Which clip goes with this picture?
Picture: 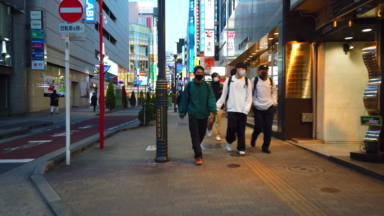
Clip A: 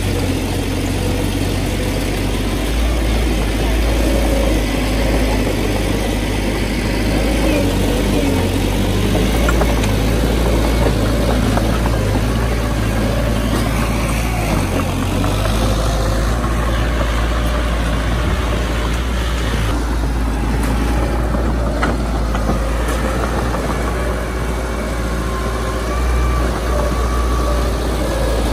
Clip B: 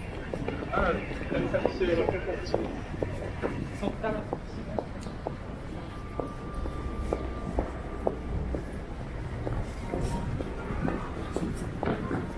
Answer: B